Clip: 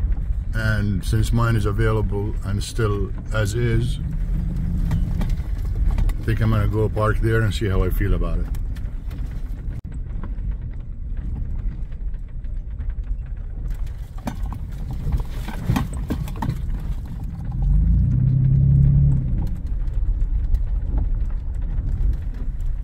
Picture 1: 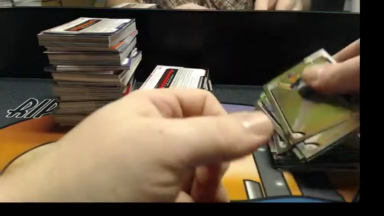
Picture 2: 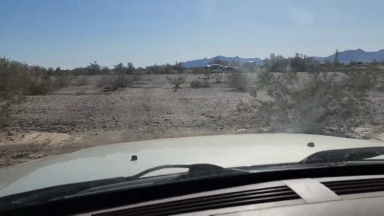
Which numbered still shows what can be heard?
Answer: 2